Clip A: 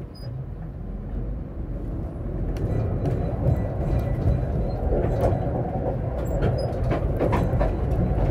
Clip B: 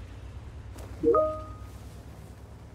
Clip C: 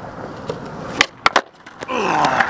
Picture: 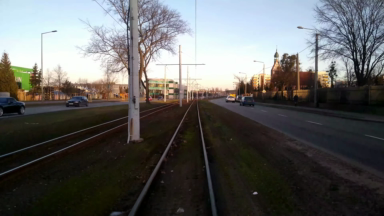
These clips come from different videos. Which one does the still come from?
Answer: A